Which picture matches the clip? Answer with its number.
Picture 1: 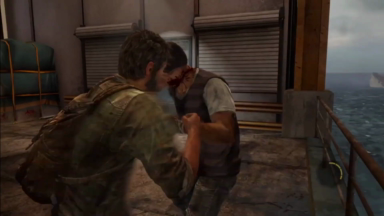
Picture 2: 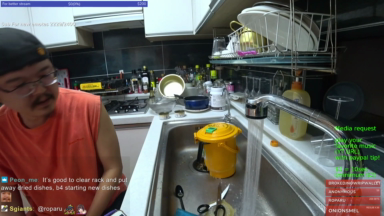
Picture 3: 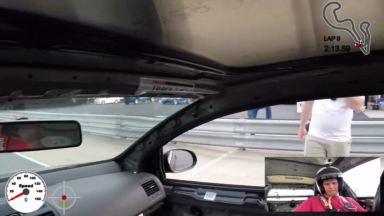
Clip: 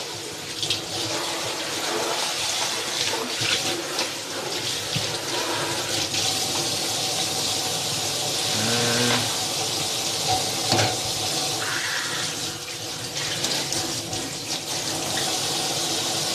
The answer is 2